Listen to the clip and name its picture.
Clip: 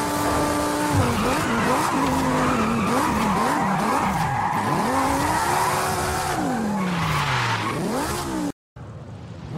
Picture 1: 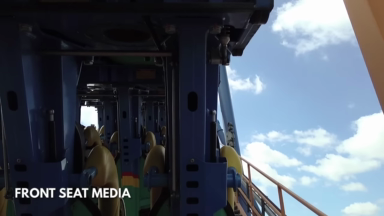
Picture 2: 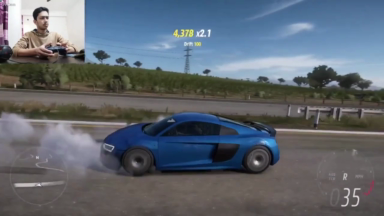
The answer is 2